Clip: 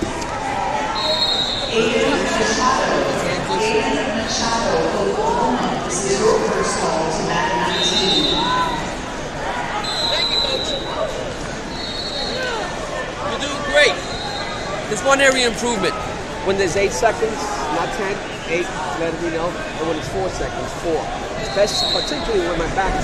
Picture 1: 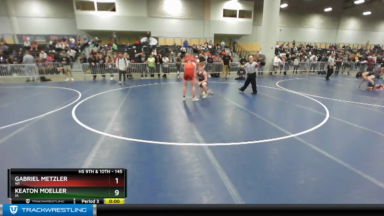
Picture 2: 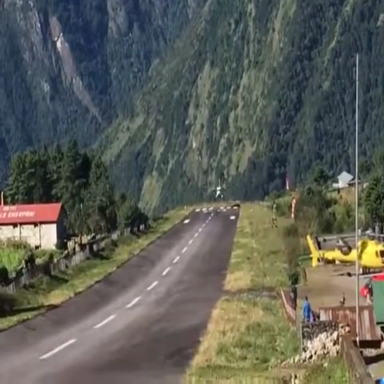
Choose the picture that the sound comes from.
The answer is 1